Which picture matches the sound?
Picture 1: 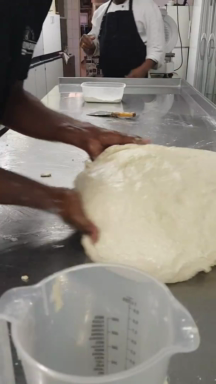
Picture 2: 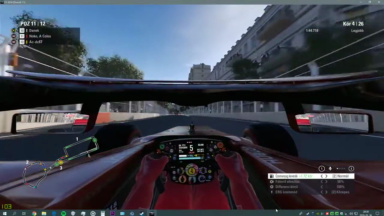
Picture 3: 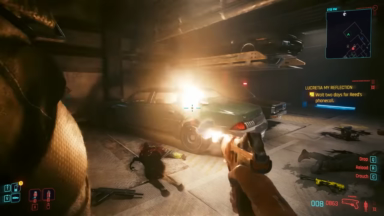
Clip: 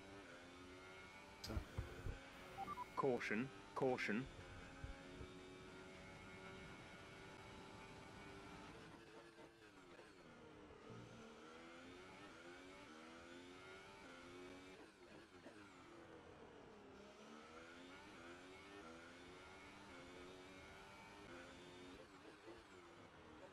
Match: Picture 2